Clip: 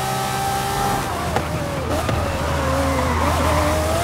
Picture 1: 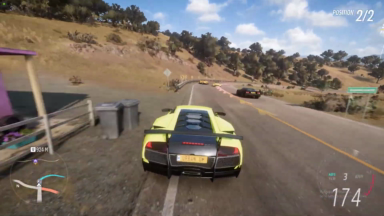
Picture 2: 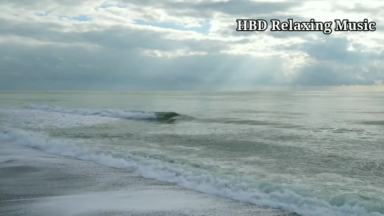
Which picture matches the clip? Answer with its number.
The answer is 1